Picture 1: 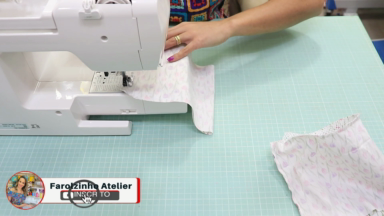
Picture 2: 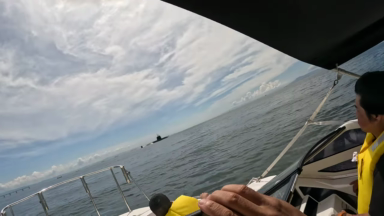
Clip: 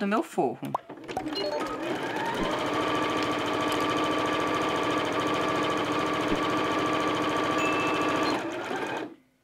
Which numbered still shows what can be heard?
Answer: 1